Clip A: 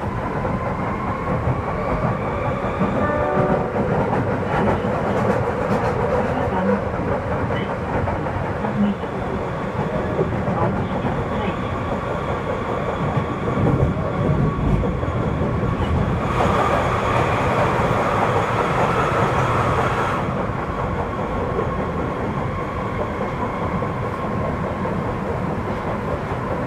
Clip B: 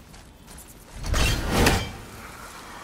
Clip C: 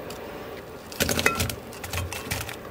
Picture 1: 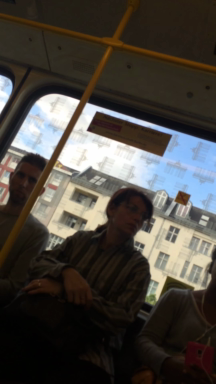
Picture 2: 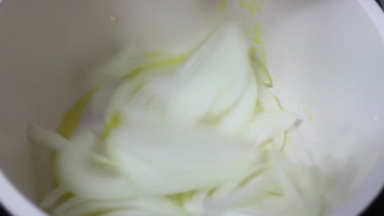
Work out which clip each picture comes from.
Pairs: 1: A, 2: C